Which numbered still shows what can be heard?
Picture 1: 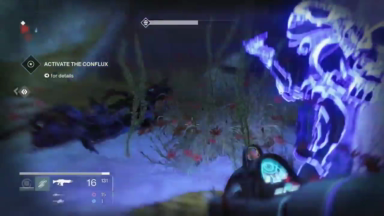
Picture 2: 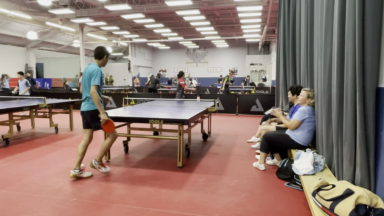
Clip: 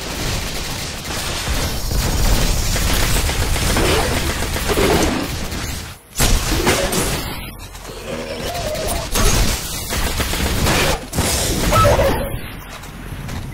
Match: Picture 1